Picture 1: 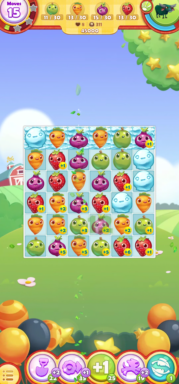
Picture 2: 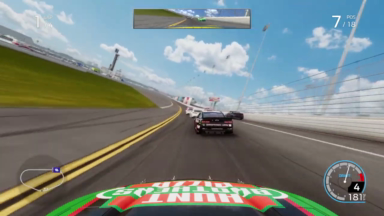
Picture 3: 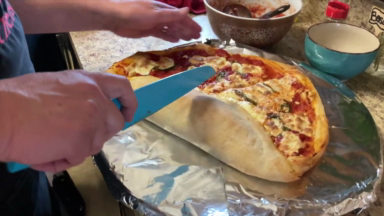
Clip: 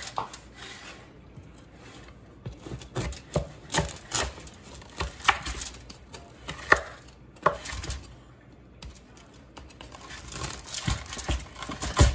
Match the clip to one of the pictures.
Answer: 3